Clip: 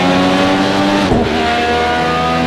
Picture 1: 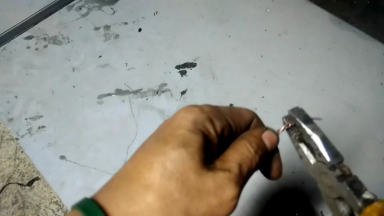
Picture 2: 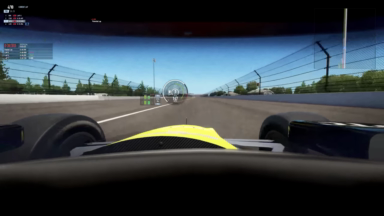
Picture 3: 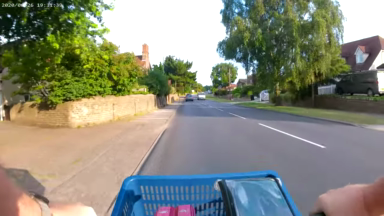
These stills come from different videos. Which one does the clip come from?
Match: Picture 2